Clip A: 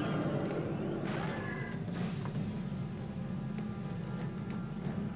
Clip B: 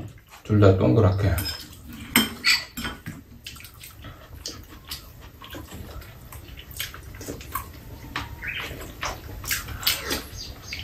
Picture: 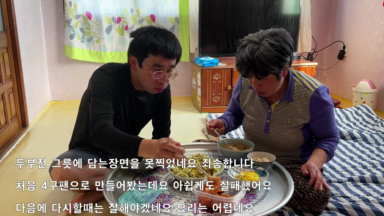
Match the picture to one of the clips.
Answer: B